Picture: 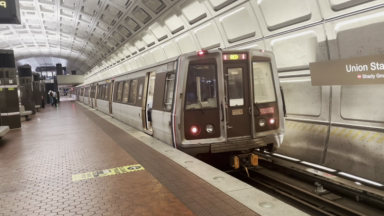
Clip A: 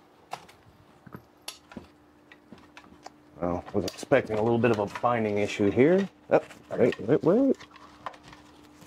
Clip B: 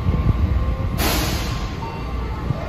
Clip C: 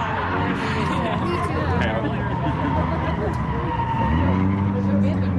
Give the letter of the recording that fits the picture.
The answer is B